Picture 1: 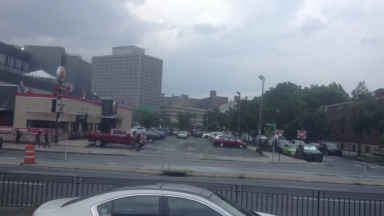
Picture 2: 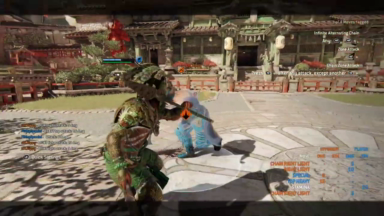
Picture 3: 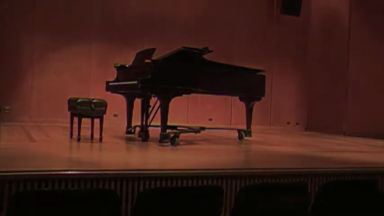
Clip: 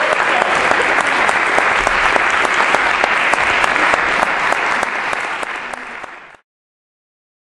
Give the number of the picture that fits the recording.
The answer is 3